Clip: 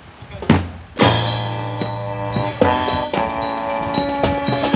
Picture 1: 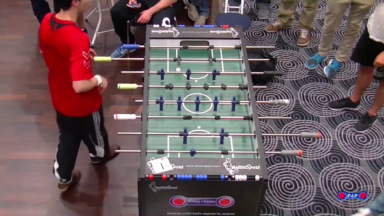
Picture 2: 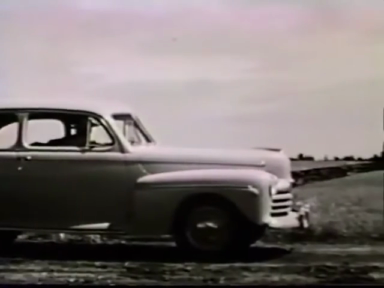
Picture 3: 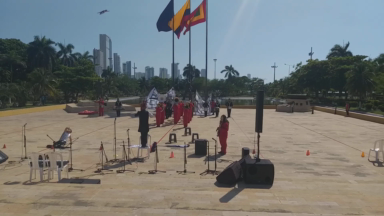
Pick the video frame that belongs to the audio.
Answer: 3